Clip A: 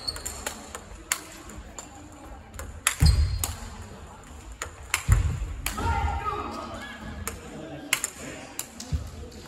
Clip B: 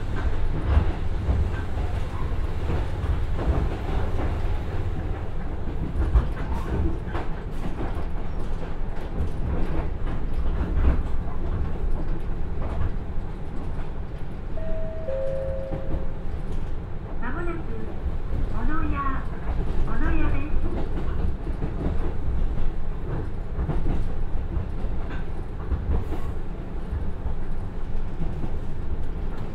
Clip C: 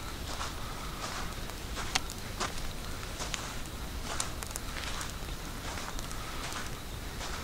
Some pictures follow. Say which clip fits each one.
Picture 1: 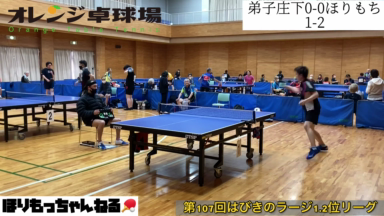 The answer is A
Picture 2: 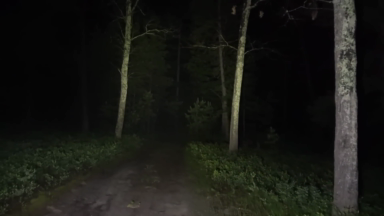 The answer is C